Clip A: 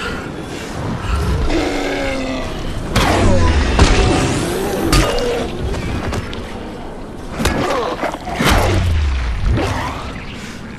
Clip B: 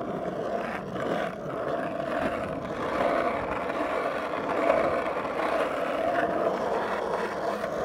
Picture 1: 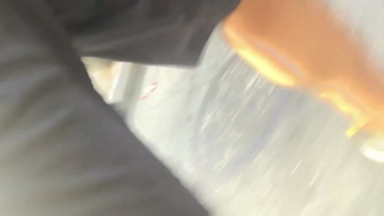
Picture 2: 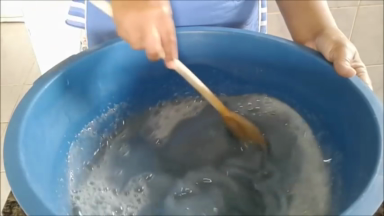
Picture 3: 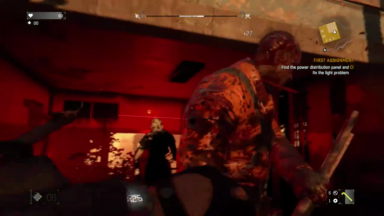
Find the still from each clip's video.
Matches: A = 3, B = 1